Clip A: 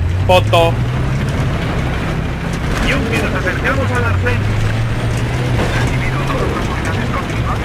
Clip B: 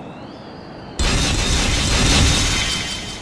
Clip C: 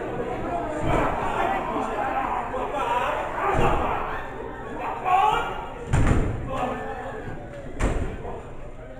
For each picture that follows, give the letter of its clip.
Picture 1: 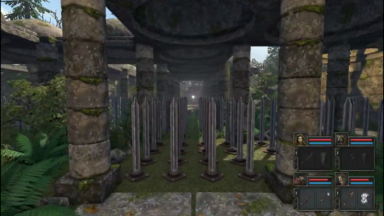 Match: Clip B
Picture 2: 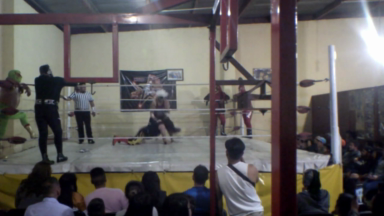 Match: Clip C